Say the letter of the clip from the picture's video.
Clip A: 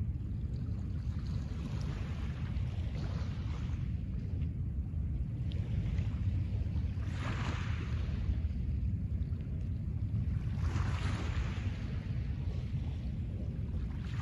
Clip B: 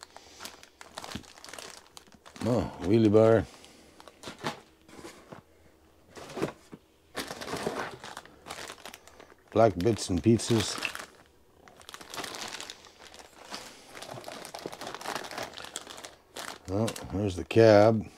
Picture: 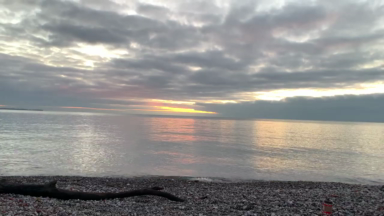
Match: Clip A